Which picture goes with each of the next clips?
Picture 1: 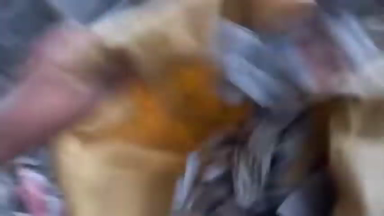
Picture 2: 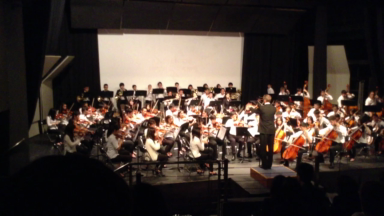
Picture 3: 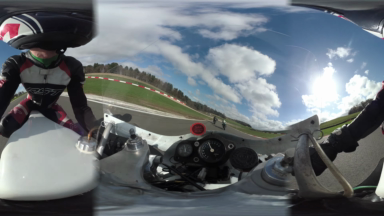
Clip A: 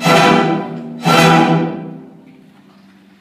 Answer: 2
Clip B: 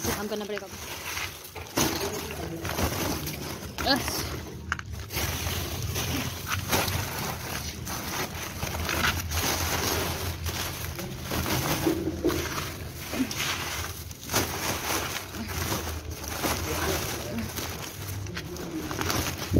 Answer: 1